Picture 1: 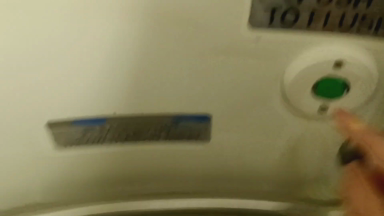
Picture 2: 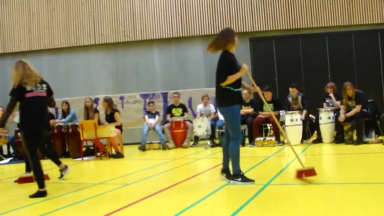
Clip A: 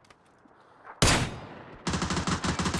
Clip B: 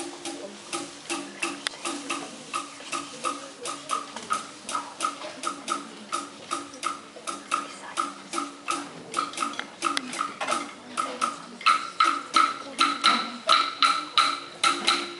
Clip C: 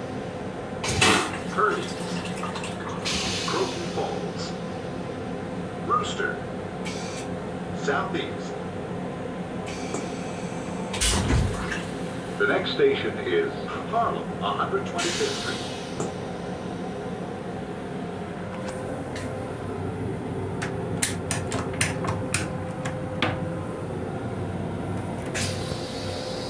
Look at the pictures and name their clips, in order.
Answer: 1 C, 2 B